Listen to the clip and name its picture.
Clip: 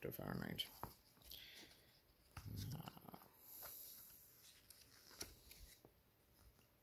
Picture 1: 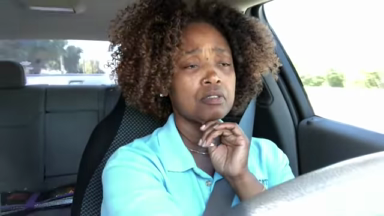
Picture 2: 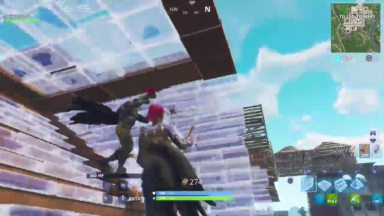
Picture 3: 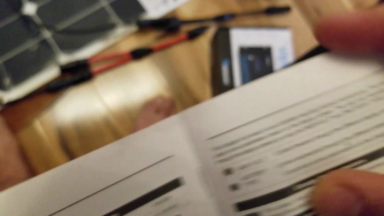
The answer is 3